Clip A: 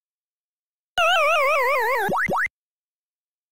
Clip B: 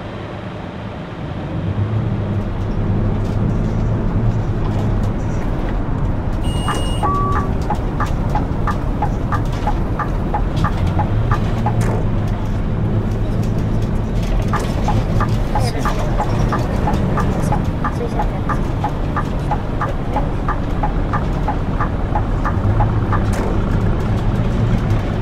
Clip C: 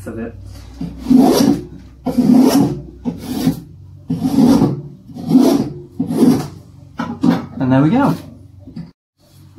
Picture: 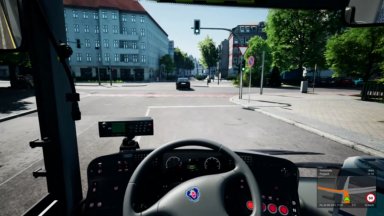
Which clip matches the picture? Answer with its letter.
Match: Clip B